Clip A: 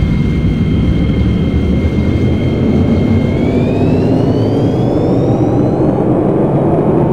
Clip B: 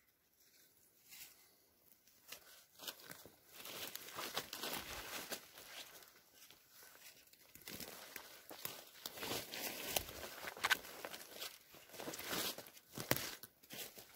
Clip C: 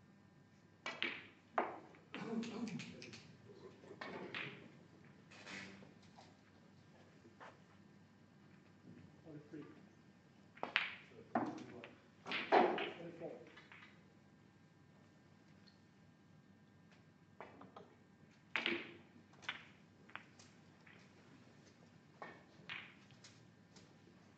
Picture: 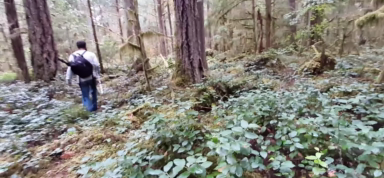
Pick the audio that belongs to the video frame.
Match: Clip B